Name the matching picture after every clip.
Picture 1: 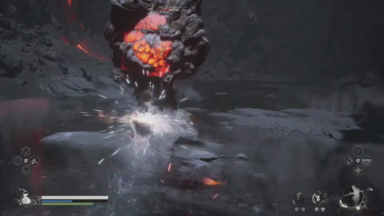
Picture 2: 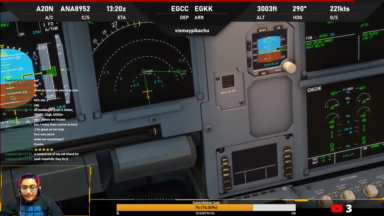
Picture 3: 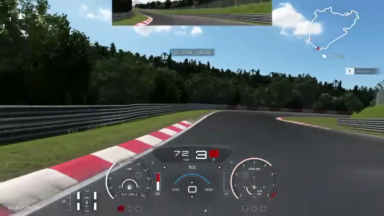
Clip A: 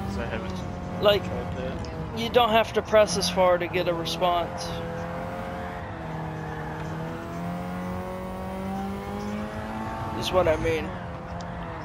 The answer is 3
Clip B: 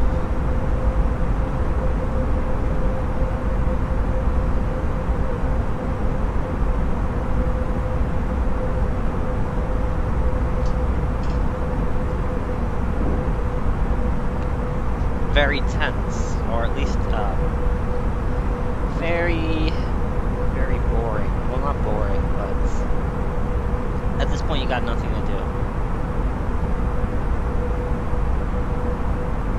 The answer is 2